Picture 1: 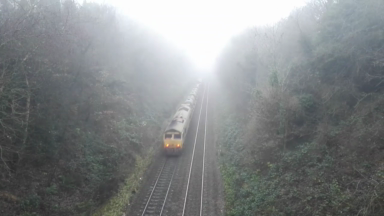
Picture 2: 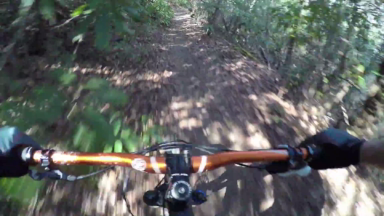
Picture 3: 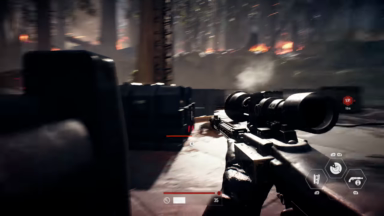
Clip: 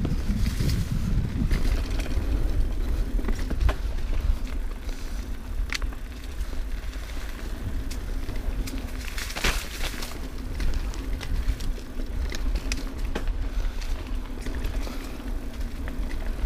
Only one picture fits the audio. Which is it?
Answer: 2